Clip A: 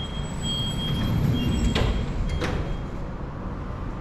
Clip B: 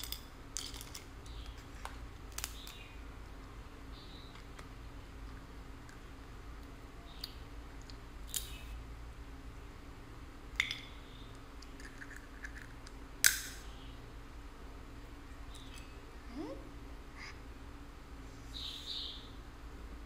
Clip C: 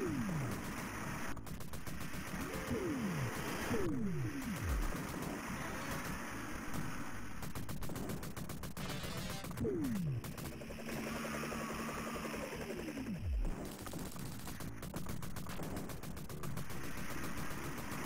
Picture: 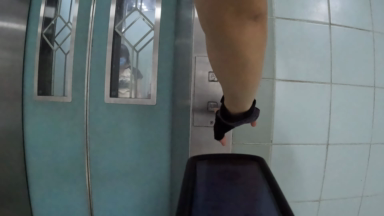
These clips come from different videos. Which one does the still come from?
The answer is A